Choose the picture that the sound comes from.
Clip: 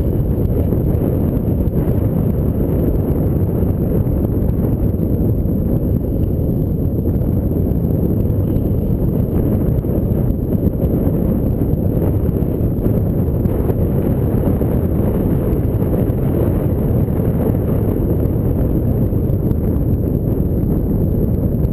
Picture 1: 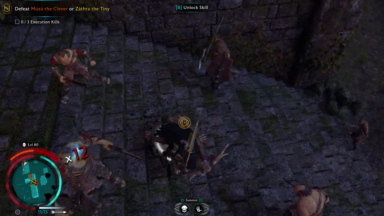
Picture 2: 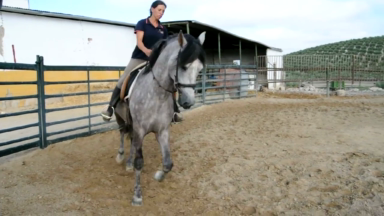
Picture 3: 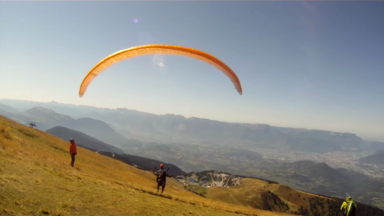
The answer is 3